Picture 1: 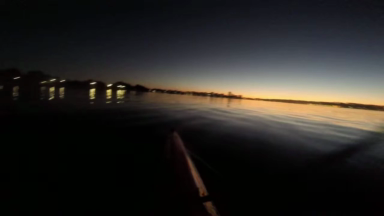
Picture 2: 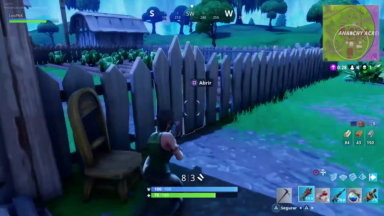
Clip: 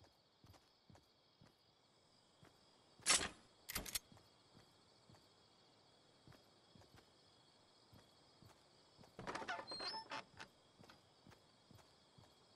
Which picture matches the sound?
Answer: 2